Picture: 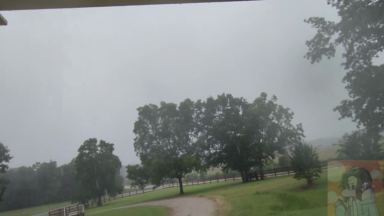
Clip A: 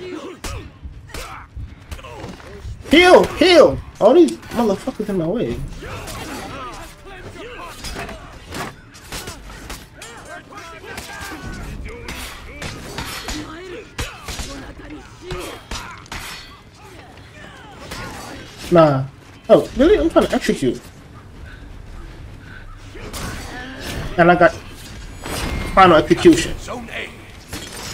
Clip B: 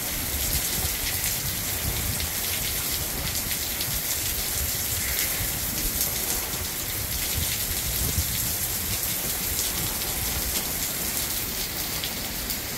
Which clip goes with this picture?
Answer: B